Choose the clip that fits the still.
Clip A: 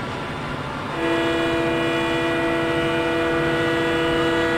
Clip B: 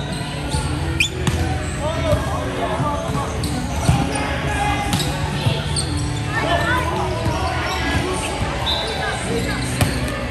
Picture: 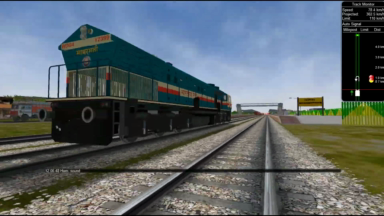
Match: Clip A